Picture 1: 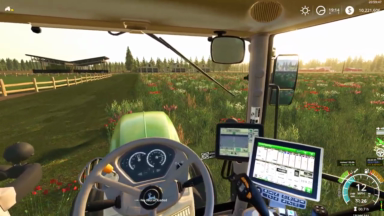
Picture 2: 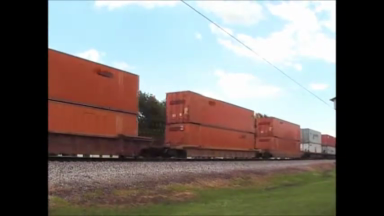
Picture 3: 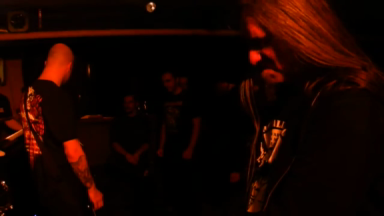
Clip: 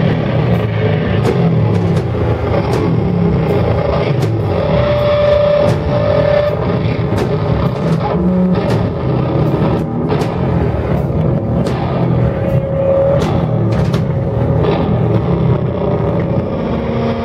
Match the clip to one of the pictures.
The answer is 3